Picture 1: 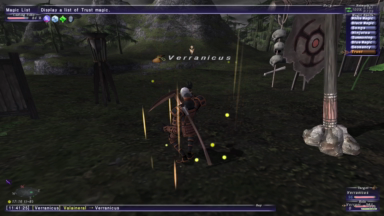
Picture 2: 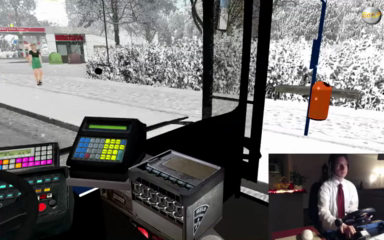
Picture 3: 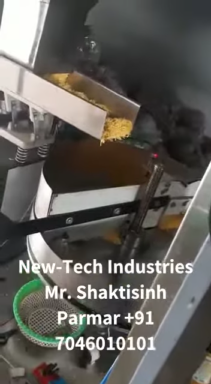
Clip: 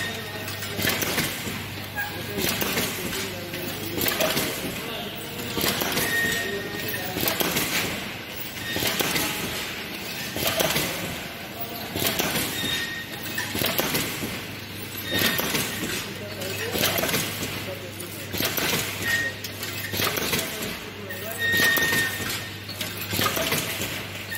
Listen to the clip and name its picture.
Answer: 3